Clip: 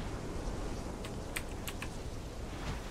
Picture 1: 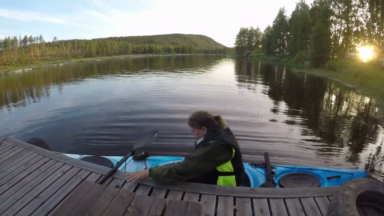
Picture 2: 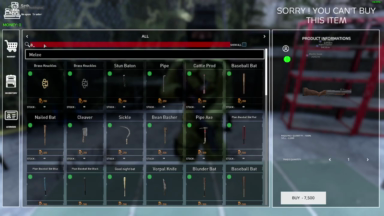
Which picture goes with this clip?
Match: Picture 2